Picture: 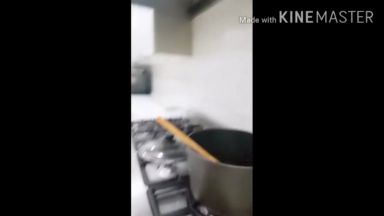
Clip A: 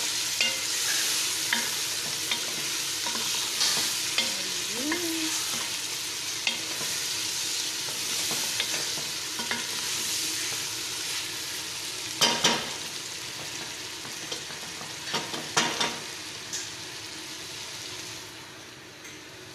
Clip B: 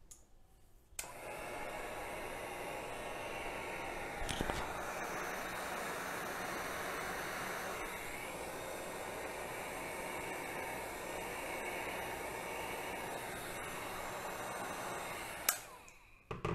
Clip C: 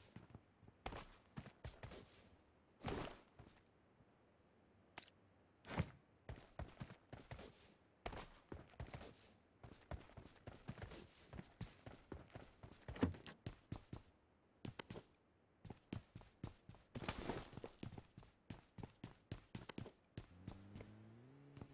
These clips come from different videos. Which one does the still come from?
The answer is A